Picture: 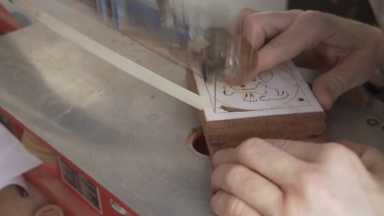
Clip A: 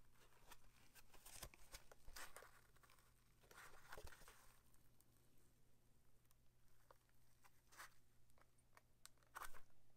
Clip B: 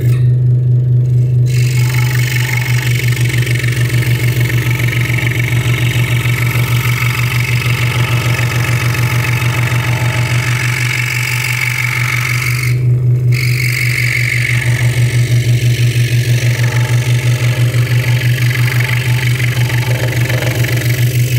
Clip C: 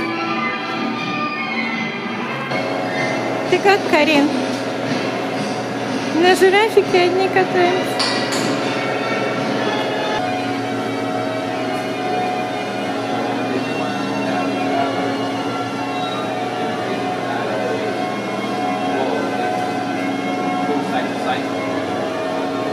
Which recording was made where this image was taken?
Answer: B